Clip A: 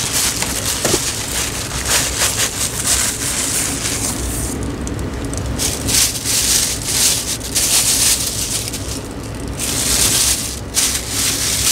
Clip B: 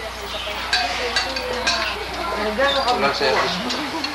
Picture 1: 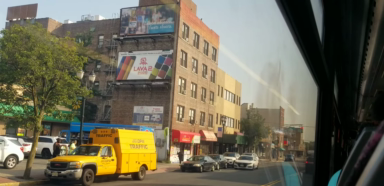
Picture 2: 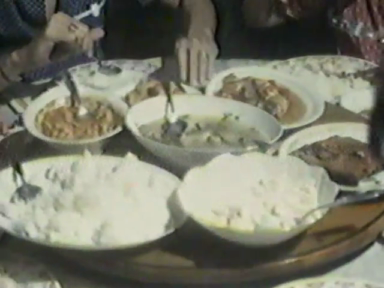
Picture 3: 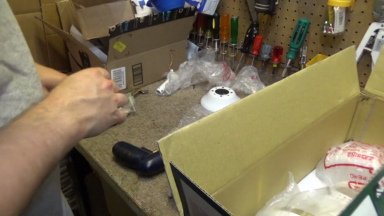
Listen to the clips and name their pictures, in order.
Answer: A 3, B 2